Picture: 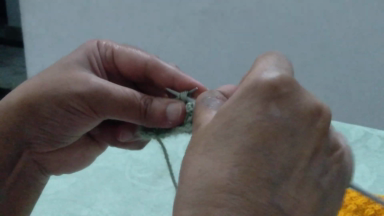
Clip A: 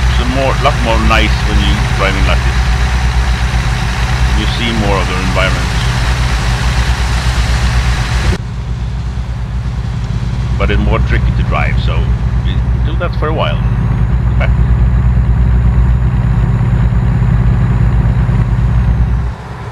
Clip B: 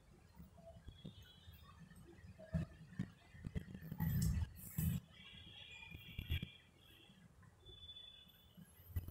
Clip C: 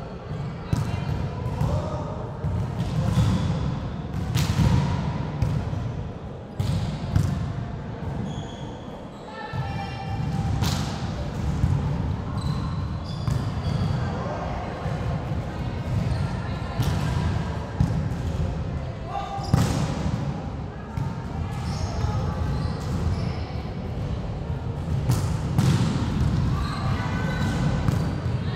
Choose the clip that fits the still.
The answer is B